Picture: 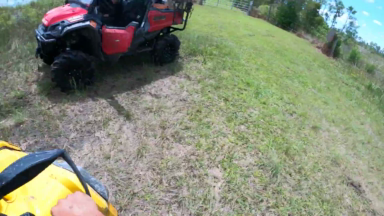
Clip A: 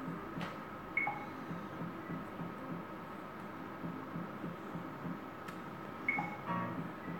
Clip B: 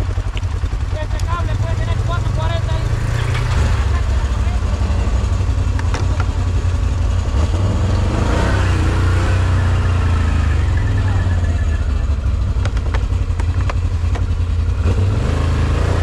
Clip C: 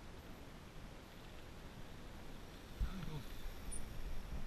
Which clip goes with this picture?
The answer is B